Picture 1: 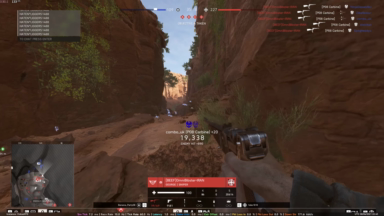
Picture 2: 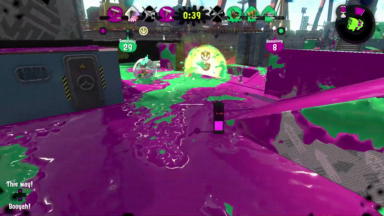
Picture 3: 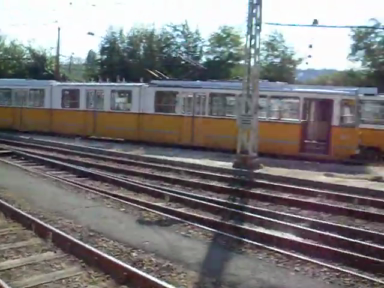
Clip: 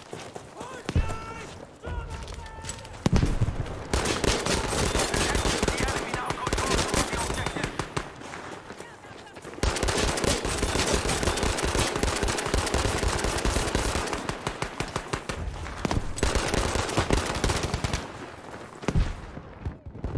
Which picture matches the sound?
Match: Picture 1